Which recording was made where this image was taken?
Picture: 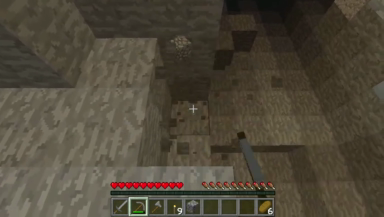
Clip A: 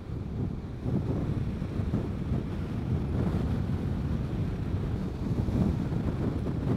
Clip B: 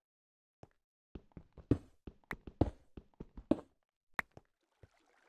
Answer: B